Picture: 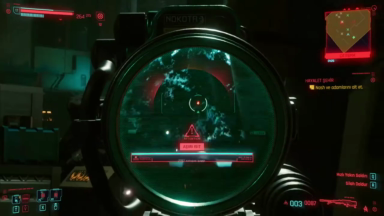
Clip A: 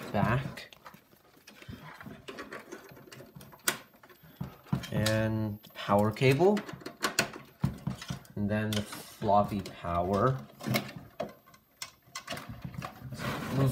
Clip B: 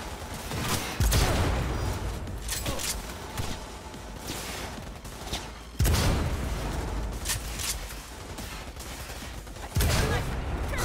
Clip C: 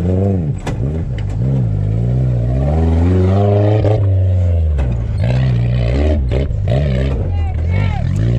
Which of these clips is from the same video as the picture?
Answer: B